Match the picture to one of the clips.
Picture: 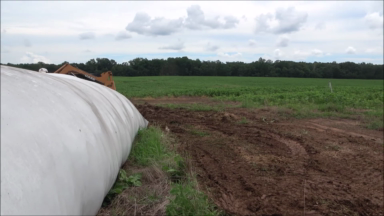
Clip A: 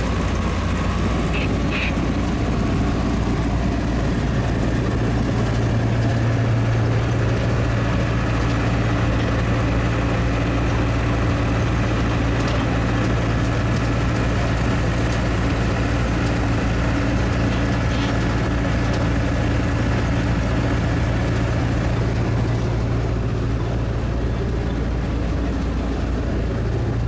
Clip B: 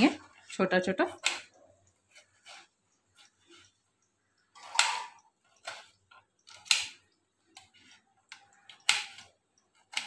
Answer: A